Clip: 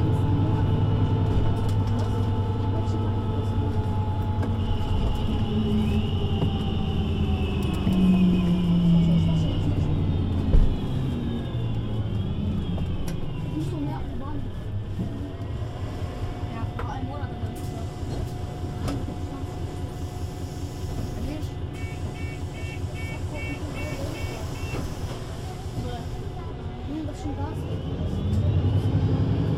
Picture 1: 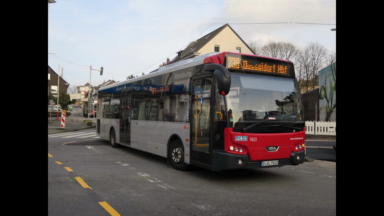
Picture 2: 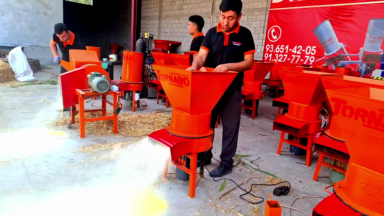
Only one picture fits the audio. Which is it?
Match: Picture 1